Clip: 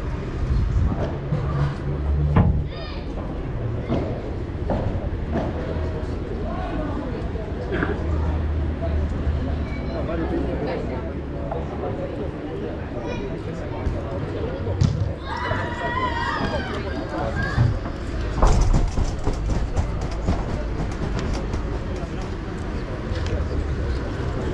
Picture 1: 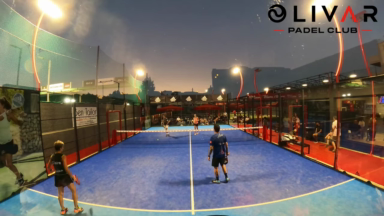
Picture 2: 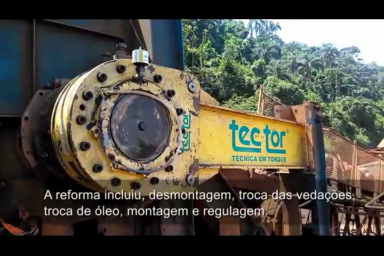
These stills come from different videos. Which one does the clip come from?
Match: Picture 1